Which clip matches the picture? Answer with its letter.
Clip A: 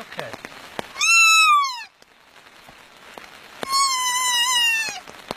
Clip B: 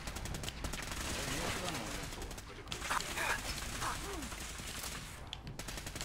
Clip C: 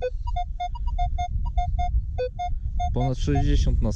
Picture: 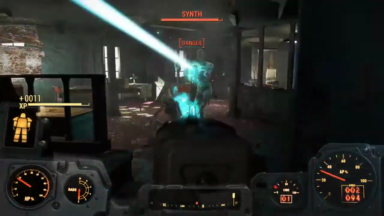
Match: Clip B